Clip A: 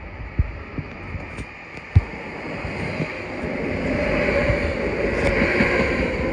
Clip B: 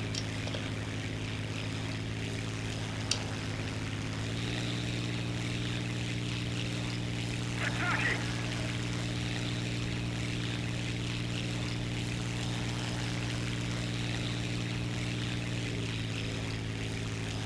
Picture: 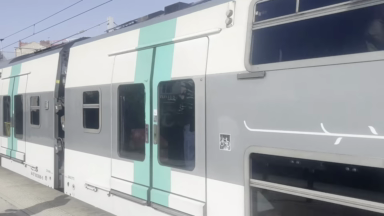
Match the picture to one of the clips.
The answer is A